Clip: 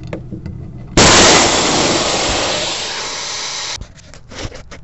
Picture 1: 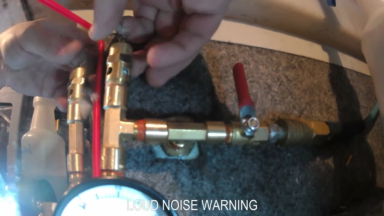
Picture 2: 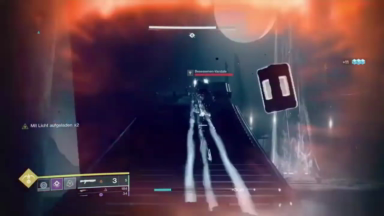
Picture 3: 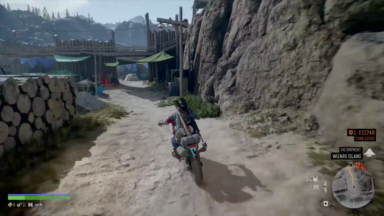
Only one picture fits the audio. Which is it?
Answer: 1